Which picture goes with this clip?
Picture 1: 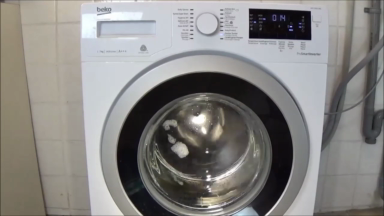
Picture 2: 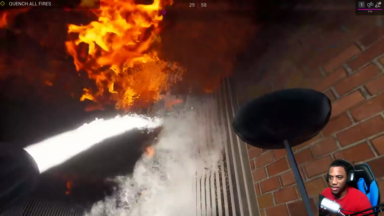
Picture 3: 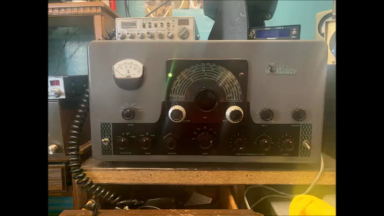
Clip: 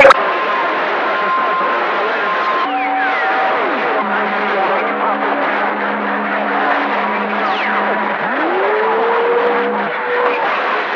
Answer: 3